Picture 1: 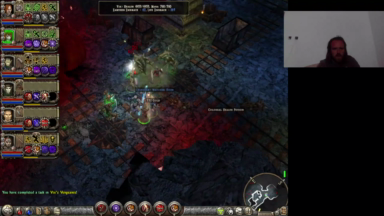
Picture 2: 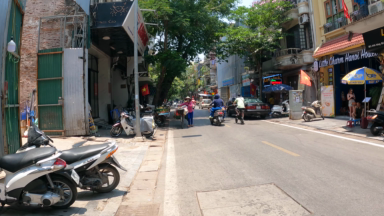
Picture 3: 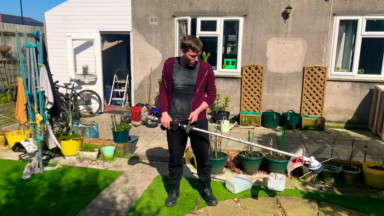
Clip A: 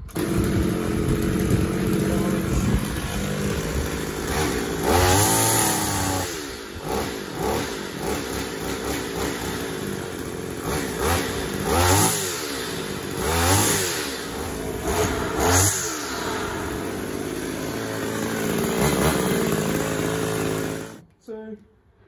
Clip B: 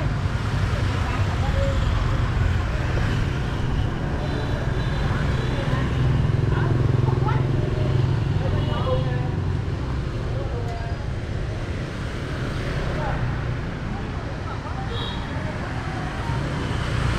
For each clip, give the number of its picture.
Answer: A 3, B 2